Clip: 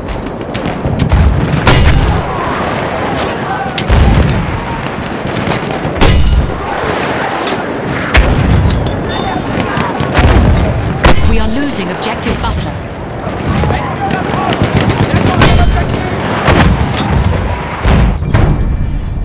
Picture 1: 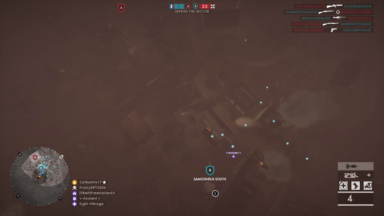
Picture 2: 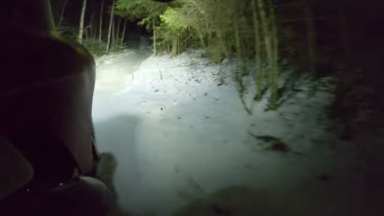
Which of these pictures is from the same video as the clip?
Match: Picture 1